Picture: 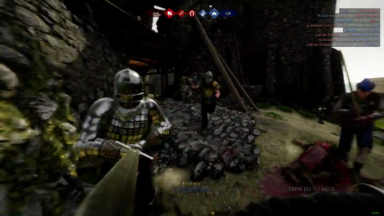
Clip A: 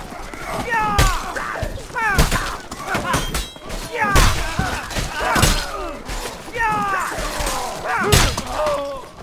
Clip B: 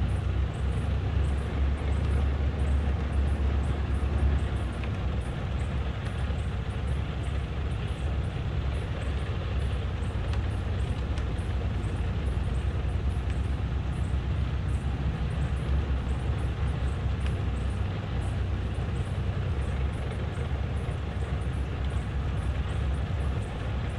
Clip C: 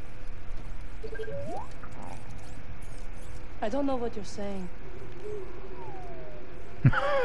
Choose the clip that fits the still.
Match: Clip A